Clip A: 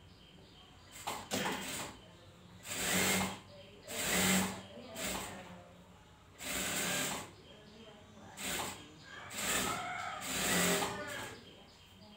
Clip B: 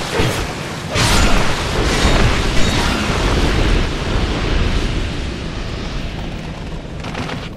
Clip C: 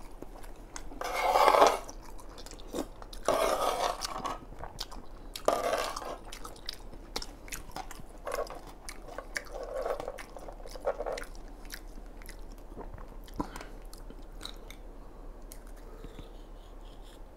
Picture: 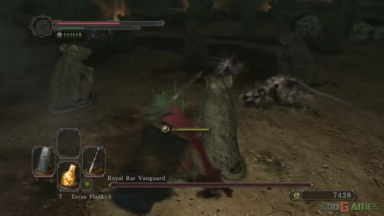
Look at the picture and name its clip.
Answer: B